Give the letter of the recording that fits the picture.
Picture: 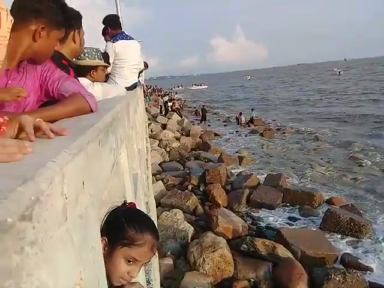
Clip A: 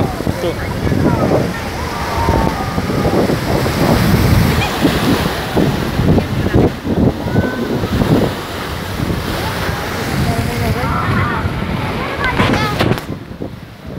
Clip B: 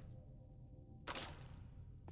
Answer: A